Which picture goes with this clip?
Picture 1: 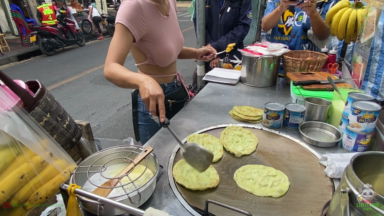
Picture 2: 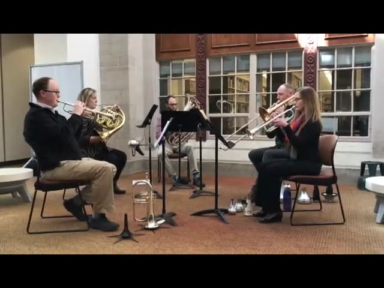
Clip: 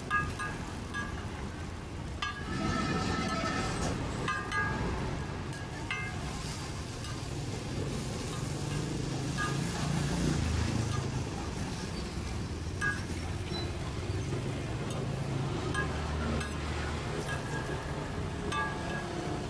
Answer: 1